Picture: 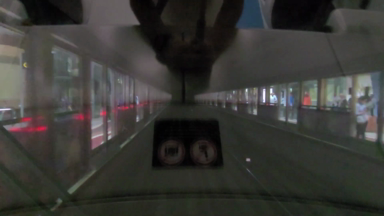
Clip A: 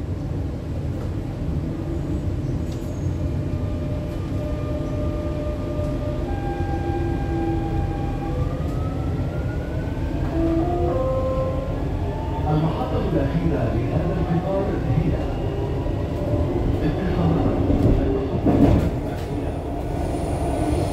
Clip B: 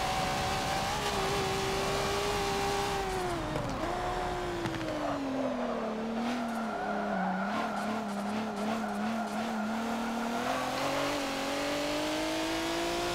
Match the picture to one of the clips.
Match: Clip A